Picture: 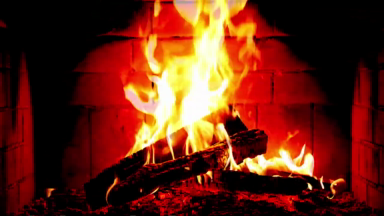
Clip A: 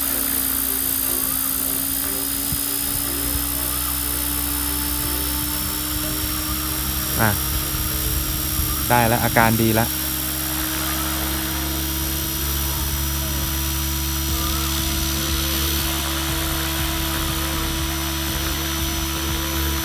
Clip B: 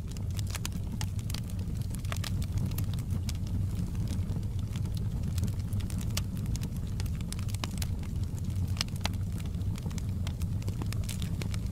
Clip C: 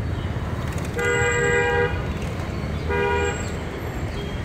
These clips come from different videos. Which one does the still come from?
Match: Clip B